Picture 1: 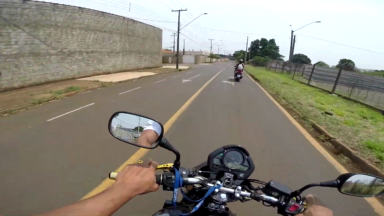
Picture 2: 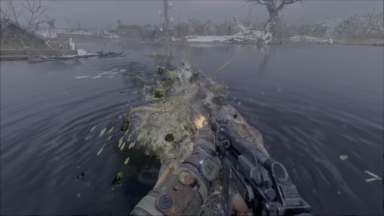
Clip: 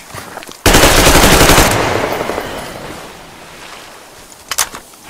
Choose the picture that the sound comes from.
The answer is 2